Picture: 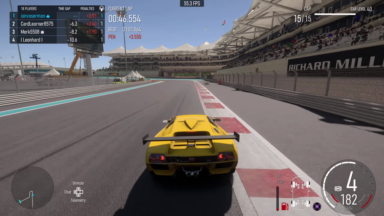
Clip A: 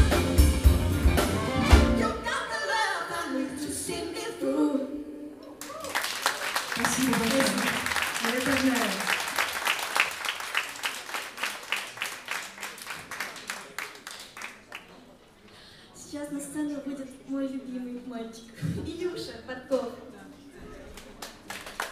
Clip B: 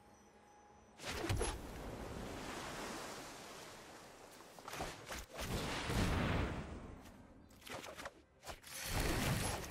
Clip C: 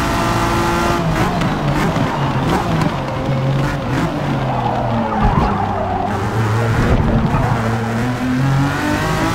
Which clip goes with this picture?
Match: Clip C